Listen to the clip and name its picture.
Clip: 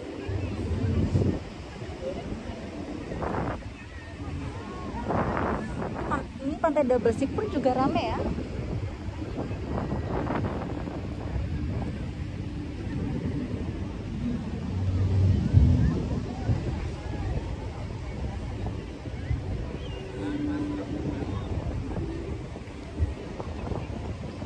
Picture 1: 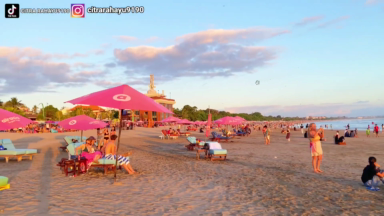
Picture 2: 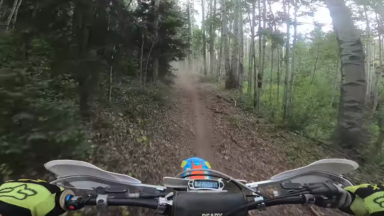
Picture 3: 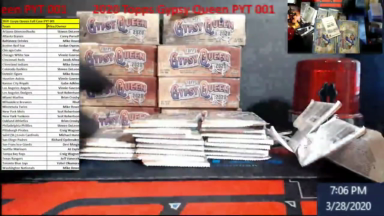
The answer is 1